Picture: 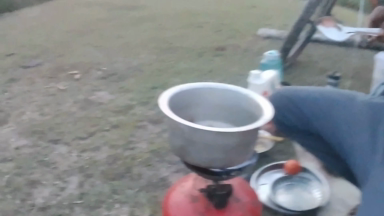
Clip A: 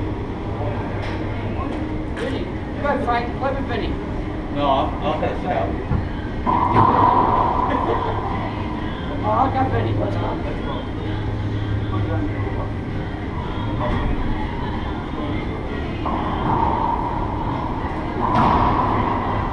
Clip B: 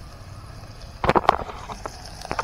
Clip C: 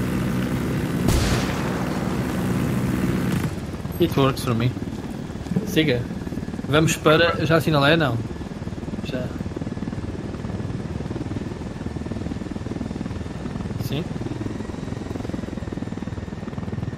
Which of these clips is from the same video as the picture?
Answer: B